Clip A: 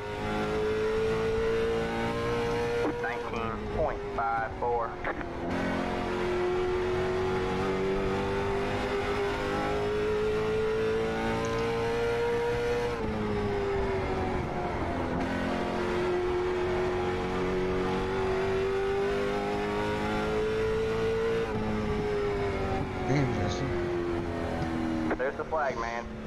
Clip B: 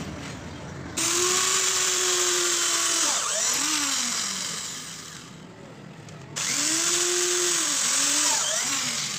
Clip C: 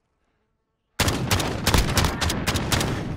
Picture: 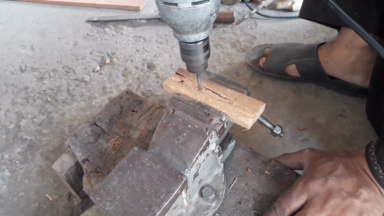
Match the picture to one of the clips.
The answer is B